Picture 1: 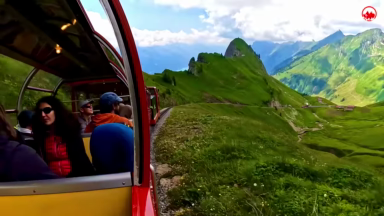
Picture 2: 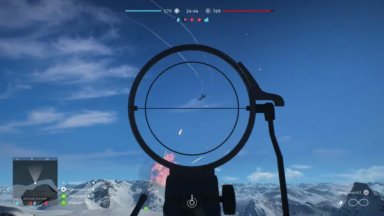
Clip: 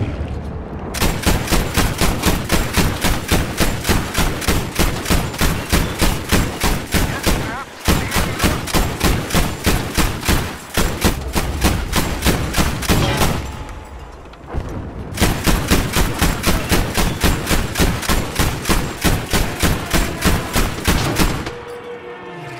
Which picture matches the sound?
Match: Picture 2